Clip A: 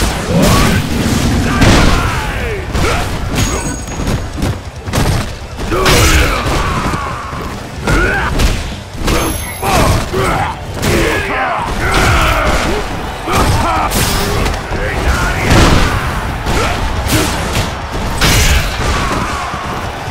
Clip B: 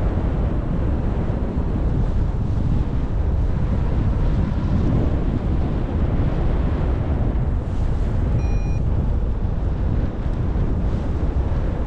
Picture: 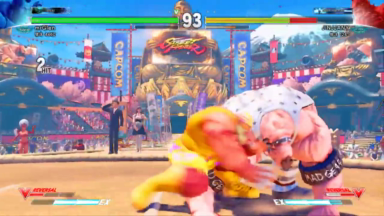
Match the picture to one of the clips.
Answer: A